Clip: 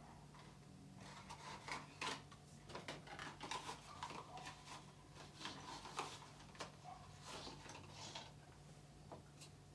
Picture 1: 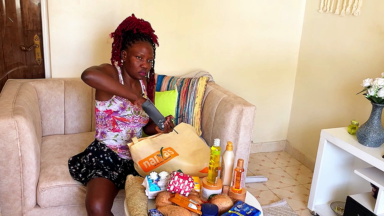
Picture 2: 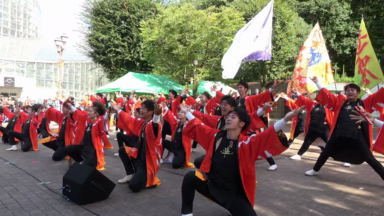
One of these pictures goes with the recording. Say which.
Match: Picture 1